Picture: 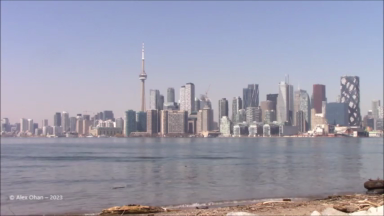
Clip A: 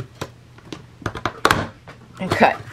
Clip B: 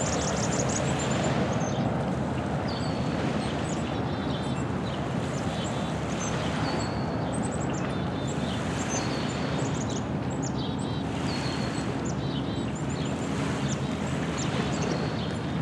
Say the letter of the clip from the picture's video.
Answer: B